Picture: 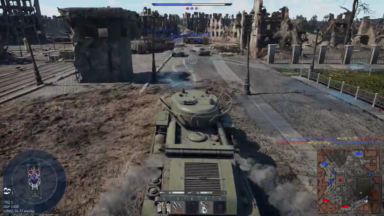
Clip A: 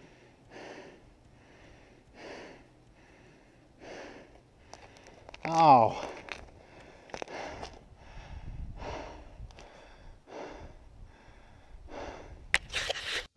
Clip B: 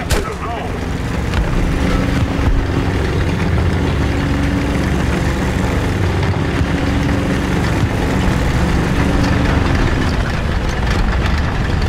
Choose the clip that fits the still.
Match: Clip B